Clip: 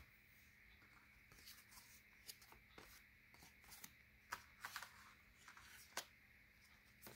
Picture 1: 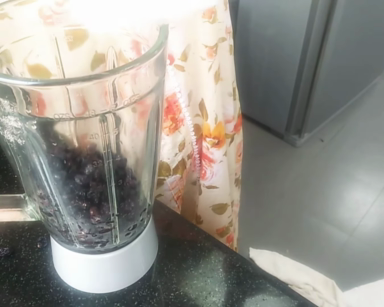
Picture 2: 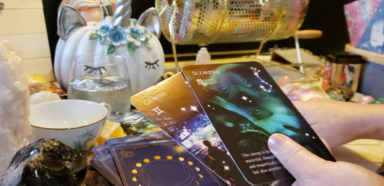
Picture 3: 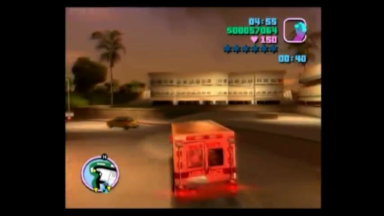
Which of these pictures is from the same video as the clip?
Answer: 2